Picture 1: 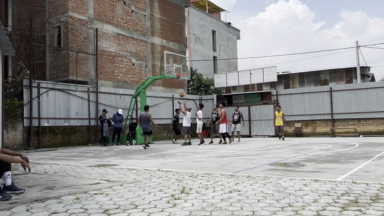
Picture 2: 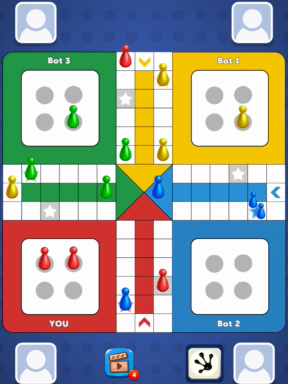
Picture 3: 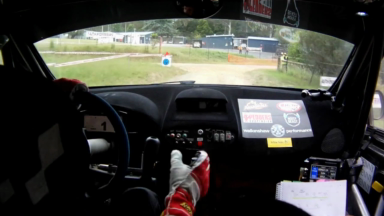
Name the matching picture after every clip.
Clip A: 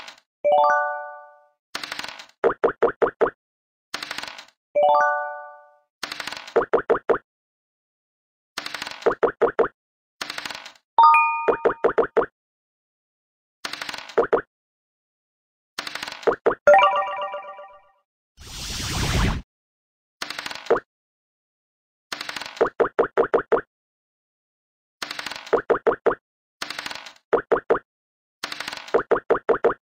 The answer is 2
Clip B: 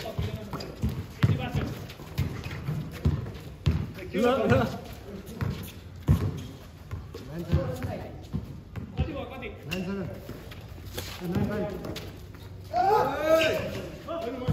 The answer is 1